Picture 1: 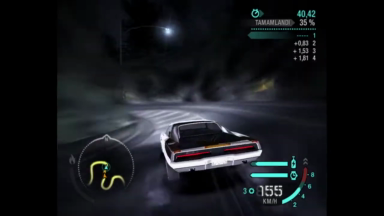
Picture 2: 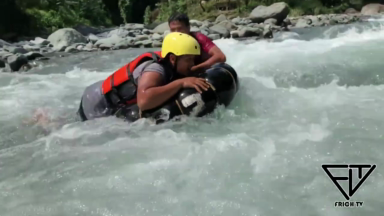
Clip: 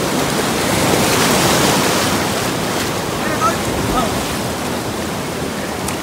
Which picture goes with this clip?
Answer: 2